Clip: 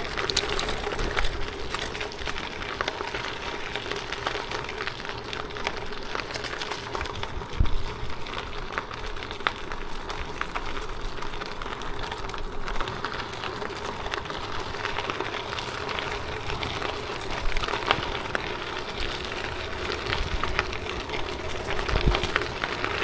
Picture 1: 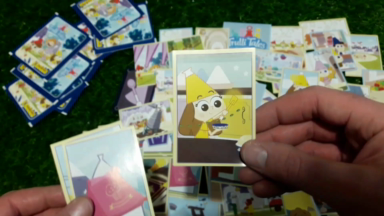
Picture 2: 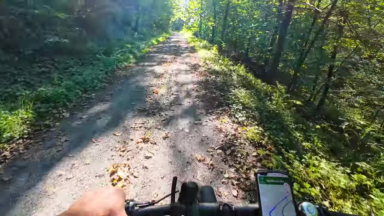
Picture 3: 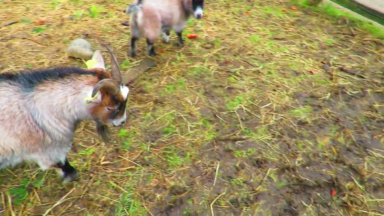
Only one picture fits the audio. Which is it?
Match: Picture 2